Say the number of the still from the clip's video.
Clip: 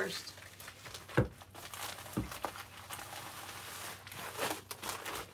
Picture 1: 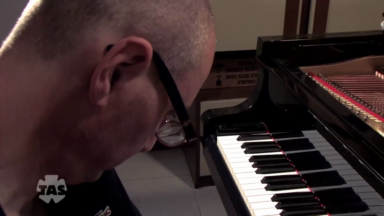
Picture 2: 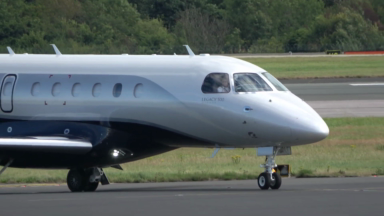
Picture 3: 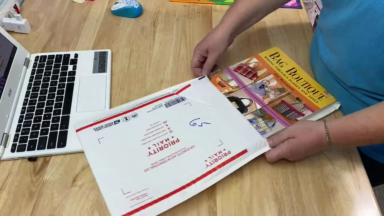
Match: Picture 3